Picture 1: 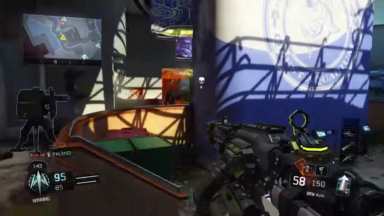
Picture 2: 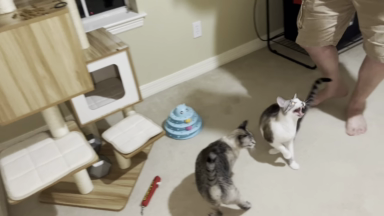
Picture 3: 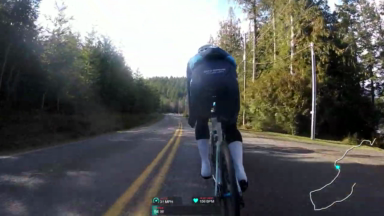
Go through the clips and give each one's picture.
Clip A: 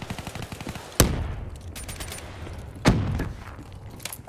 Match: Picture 1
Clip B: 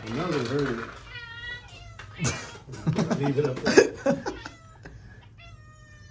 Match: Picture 2